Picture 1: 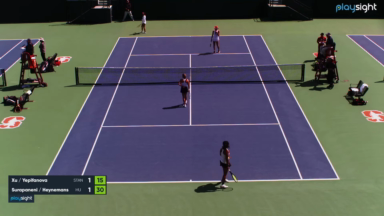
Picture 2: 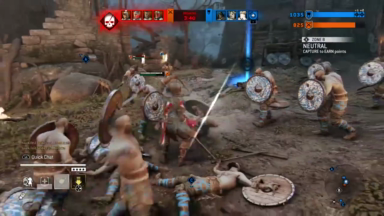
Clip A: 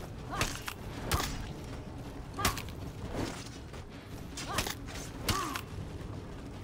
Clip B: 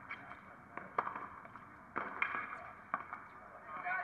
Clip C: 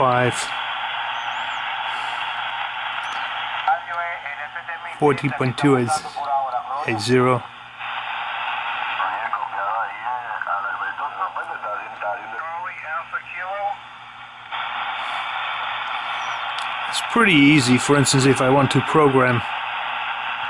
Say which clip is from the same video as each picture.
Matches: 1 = B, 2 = A